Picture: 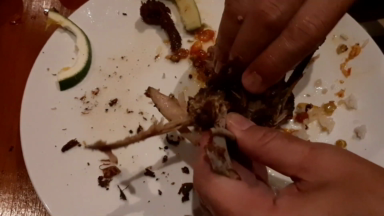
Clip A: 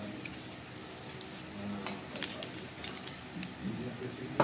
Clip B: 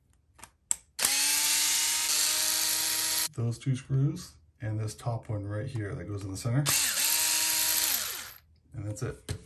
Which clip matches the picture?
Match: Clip A